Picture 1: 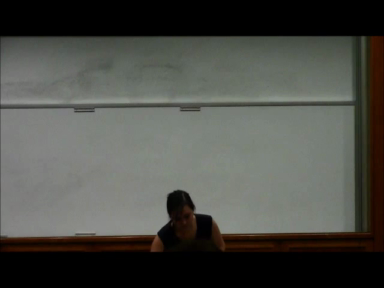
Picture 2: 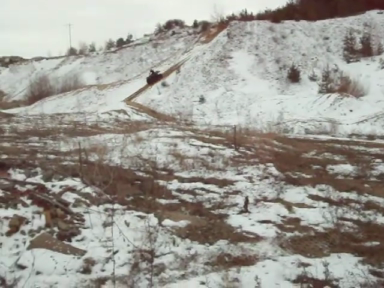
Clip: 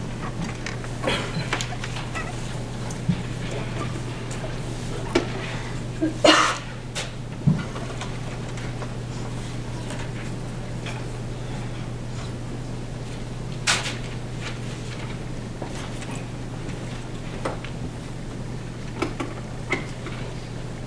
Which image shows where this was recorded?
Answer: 1